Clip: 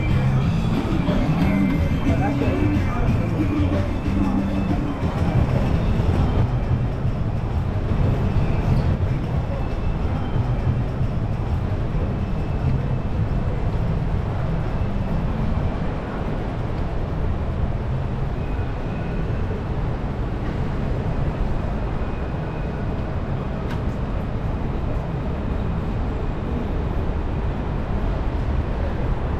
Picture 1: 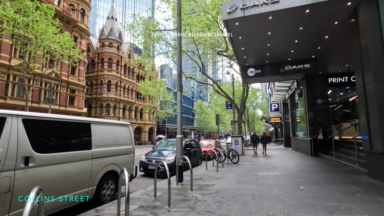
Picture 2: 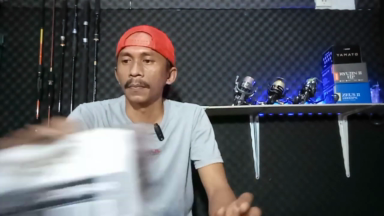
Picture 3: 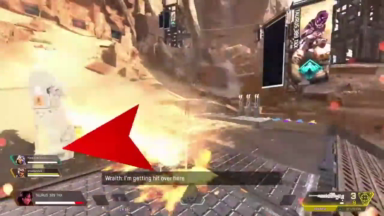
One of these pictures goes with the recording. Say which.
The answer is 1